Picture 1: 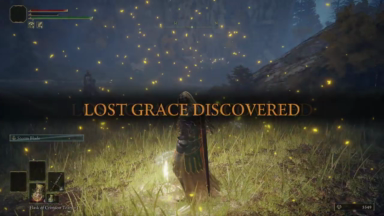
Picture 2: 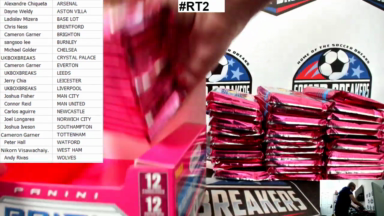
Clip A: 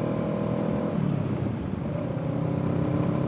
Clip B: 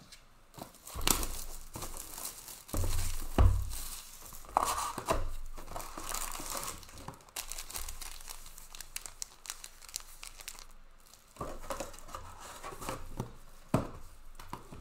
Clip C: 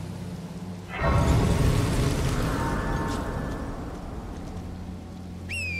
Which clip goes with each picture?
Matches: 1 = C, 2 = B